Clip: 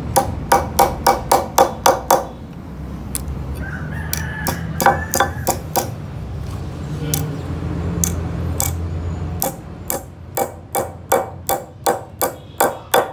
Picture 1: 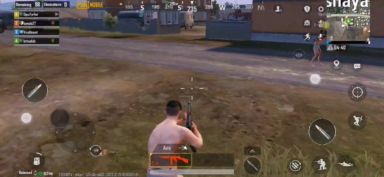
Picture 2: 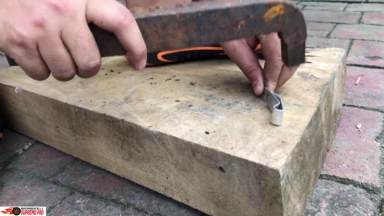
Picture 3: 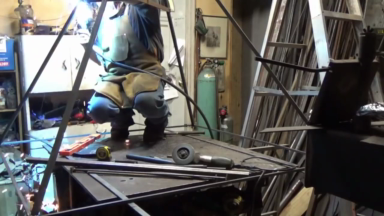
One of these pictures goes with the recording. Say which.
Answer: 2